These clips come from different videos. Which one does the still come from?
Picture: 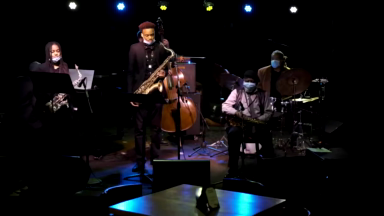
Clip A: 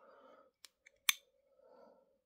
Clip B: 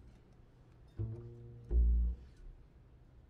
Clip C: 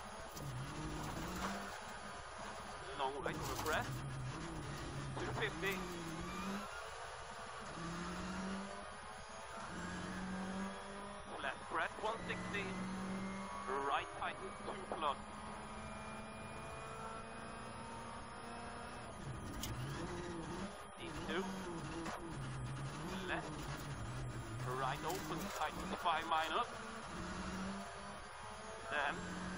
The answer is B